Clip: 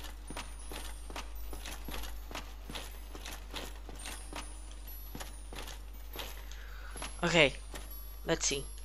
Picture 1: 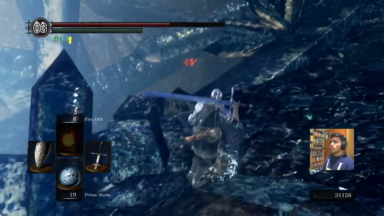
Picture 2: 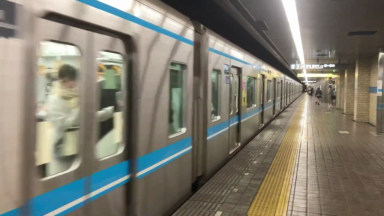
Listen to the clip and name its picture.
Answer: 1